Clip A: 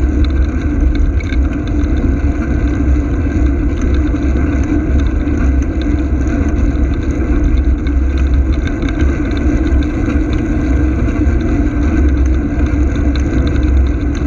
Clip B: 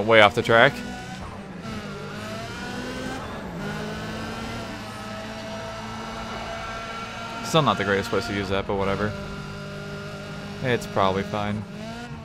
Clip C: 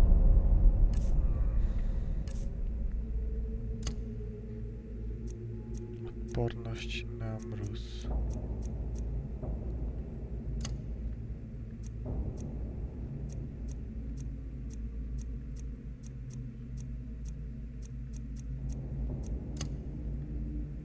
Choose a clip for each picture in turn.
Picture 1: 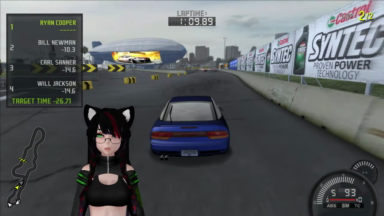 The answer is B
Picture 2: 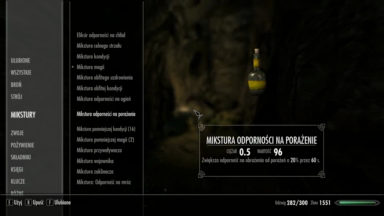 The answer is C